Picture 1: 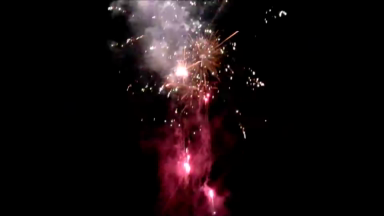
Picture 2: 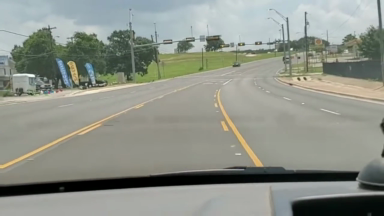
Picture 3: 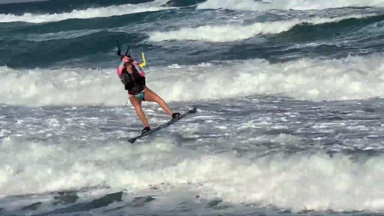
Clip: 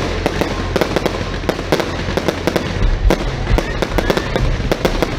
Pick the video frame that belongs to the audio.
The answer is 1